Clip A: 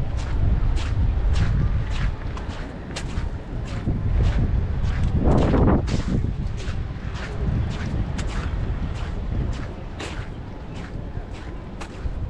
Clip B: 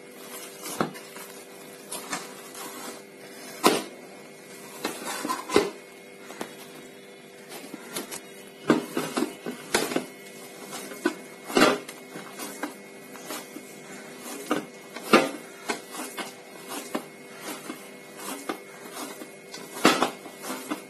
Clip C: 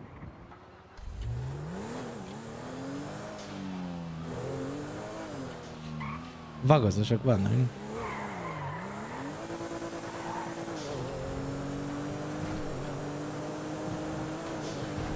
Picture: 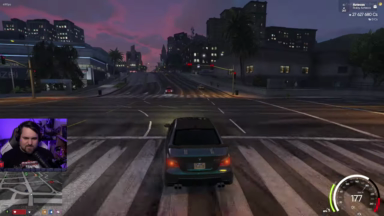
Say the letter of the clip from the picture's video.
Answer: C